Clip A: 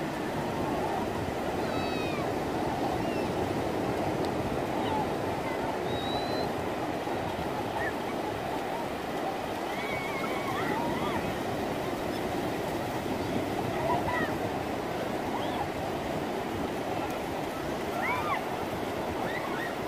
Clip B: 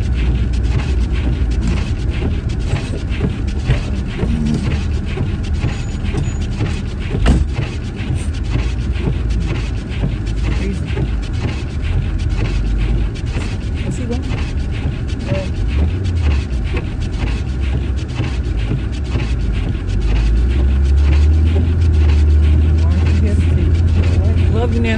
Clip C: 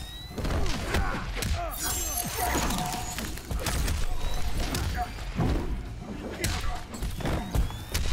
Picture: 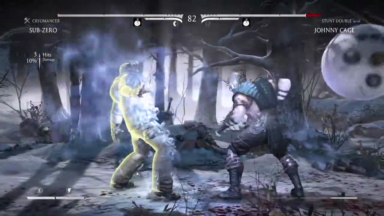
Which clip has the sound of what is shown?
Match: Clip C